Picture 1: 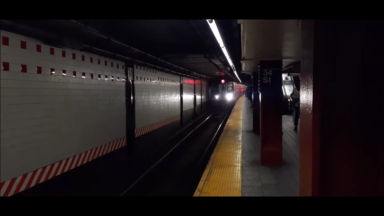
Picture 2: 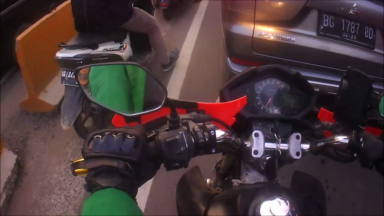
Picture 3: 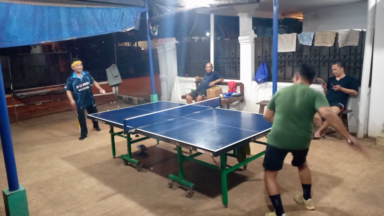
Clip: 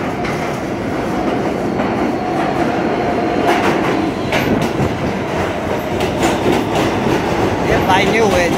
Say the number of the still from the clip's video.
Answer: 1